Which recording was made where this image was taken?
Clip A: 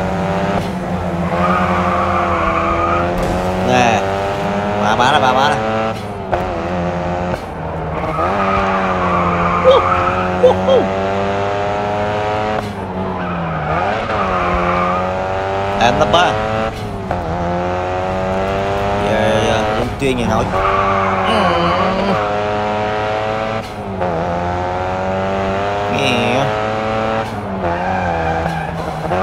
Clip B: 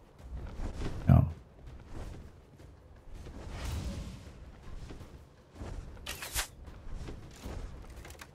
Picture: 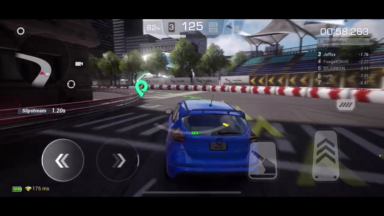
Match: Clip A